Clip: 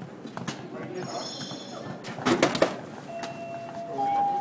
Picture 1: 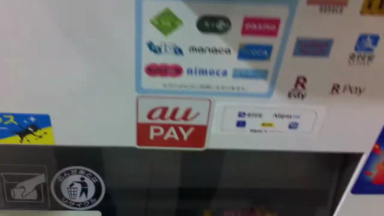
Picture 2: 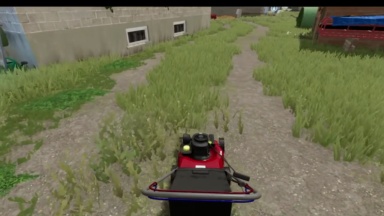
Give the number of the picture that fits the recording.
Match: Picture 1